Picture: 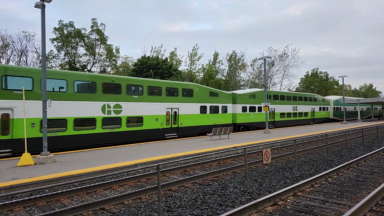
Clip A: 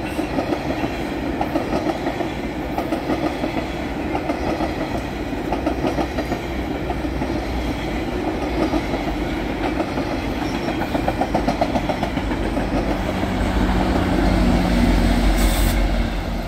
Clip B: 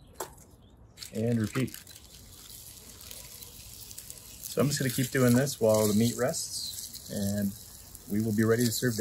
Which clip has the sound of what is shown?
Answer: A